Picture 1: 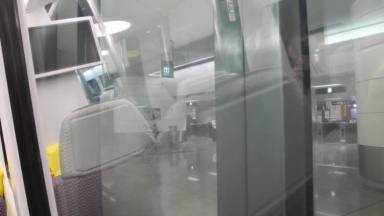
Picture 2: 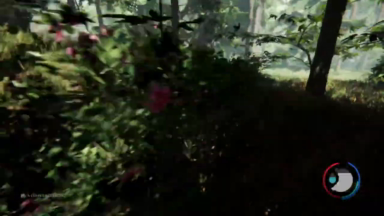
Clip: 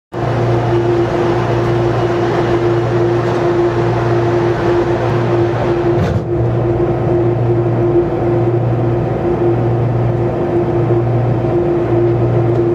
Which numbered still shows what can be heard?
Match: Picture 1